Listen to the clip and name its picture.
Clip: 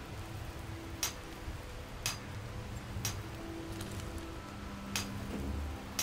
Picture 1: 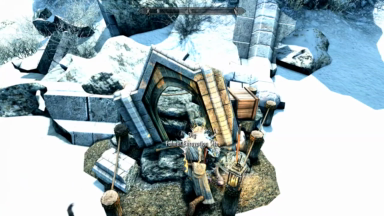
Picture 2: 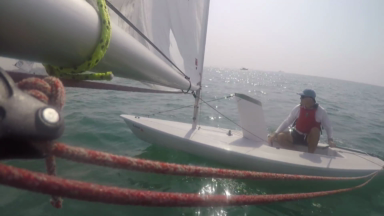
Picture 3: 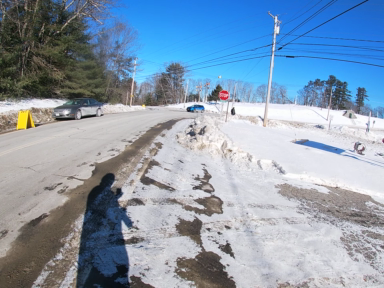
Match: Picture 1